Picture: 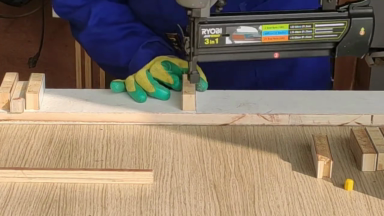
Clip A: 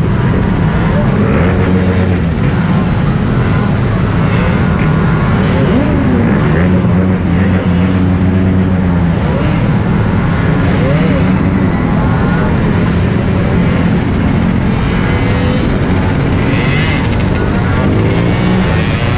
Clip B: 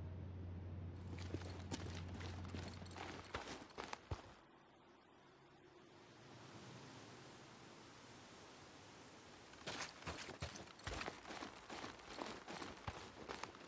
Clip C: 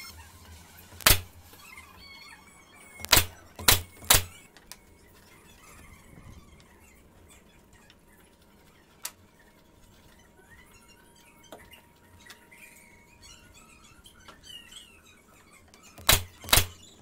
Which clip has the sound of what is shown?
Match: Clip C